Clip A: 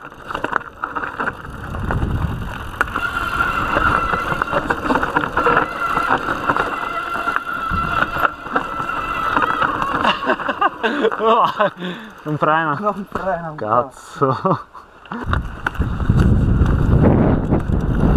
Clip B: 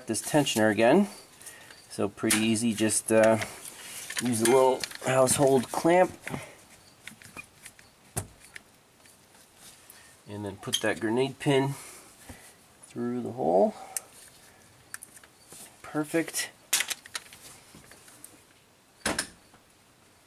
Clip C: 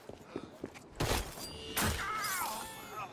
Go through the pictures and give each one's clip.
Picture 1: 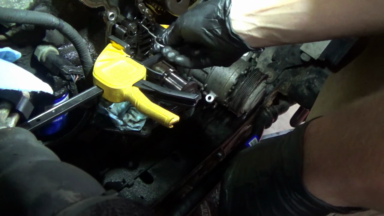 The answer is B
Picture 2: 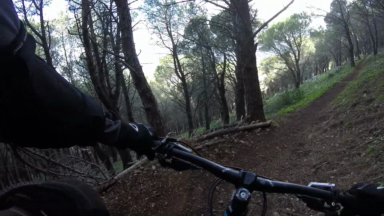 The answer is A